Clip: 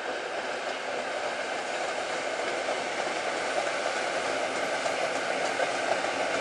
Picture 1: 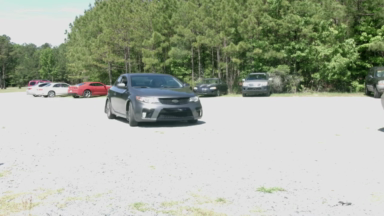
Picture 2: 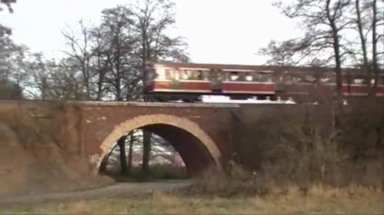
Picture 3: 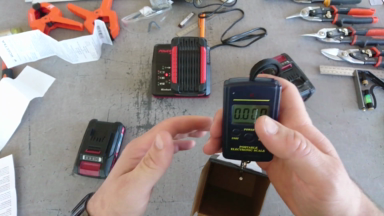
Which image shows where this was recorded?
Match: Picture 2